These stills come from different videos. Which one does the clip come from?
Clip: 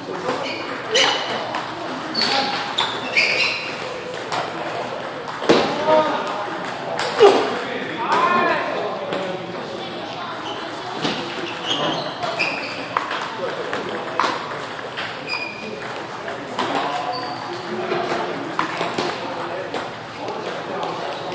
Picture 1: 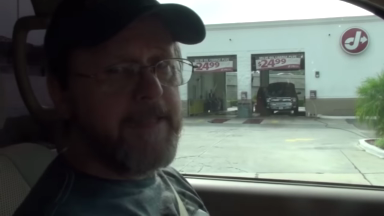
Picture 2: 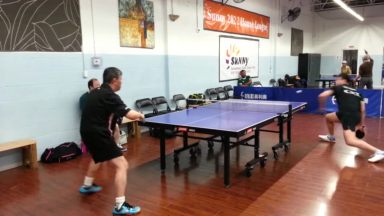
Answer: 2